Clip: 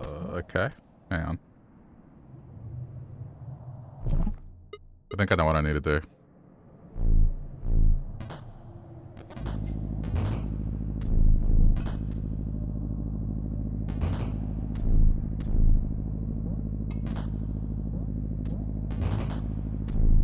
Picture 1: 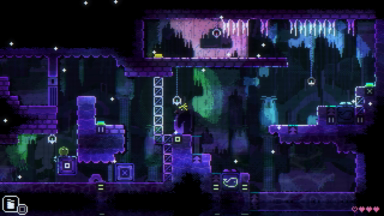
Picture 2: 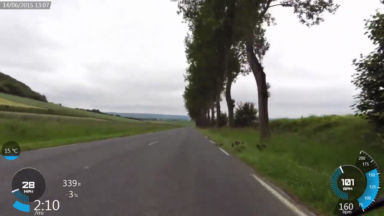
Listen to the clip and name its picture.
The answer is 1